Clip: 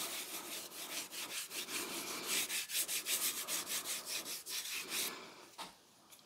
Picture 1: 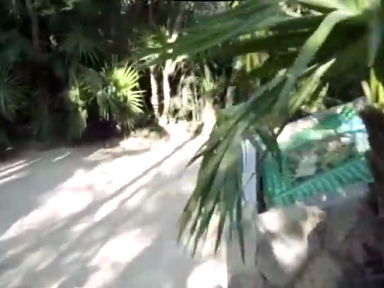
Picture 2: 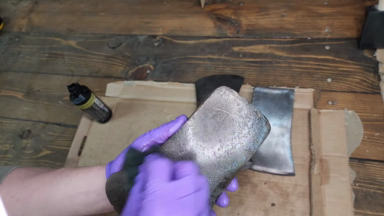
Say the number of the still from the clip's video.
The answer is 2